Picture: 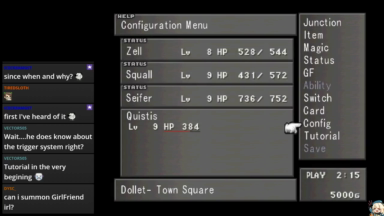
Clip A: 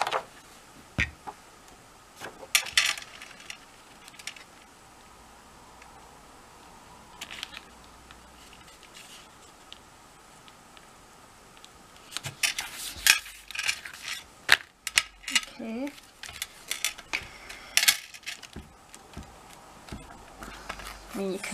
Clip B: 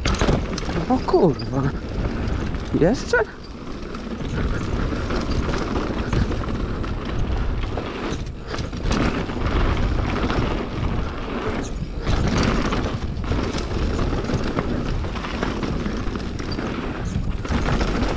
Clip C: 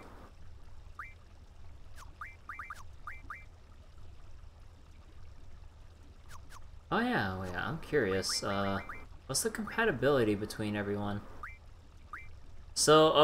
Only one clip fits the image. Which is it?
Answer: C